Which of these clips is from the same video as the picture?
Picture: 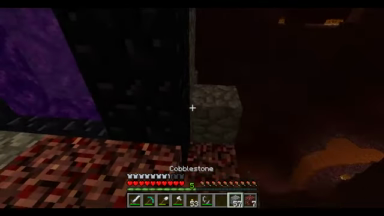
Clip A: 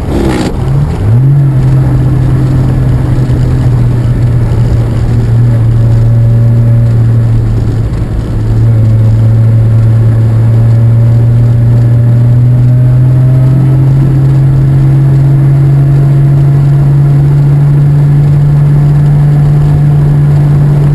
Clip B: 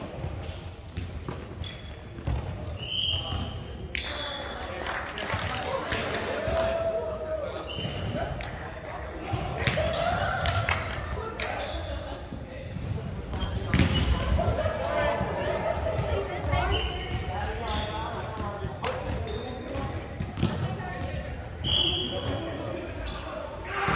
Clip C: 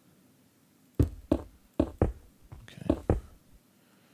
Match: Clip C